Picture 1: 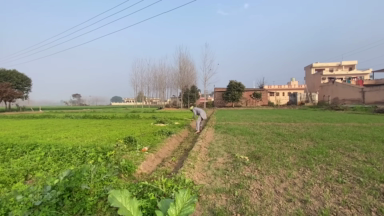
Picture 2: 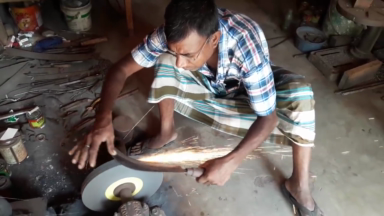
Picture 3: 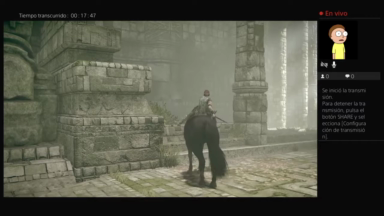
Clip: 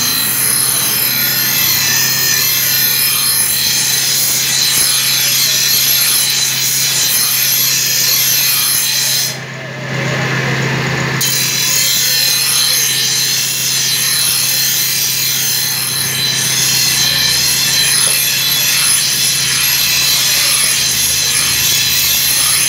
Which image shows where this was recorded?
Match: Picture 2